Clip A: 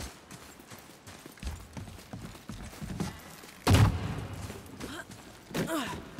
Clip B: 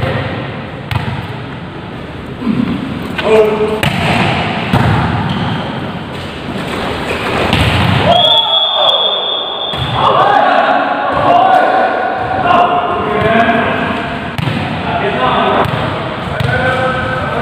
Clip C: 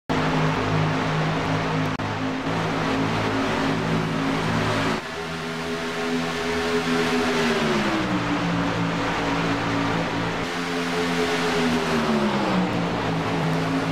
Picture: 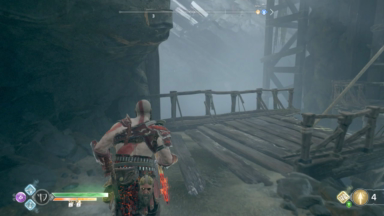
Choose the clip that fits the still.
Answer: A